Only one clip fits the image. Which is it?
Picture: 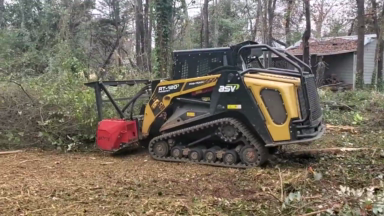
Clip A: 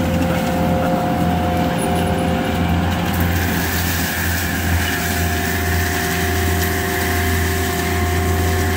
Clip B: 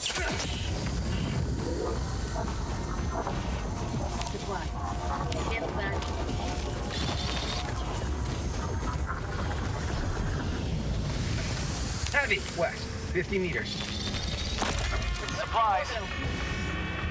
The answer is A